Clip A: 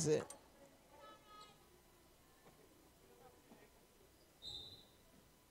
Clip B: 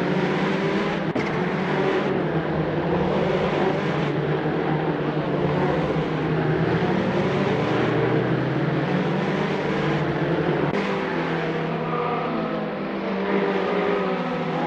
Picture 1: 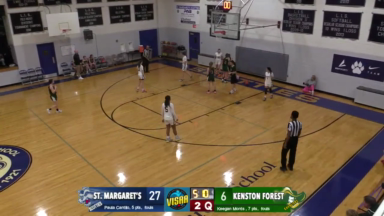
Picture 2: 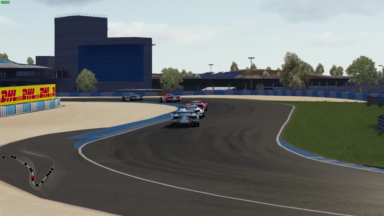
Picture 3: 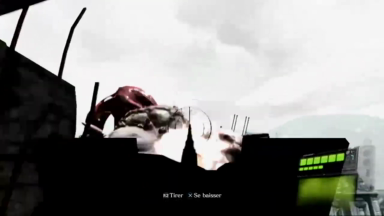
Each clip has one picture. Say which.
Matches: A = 1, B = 2